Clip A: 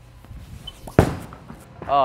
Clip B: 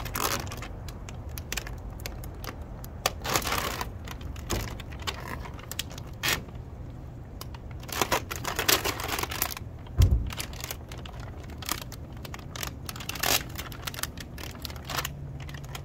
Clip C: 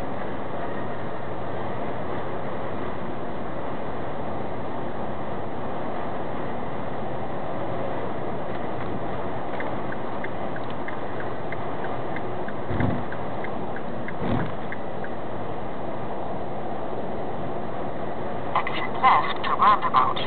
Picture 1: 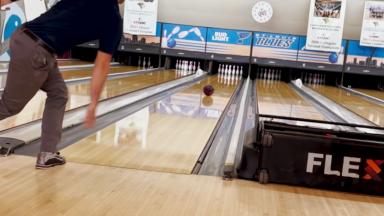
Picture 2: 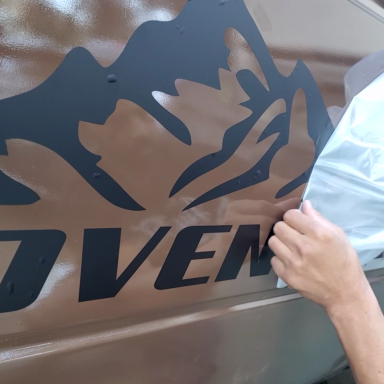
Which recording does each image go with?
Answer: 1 A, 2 B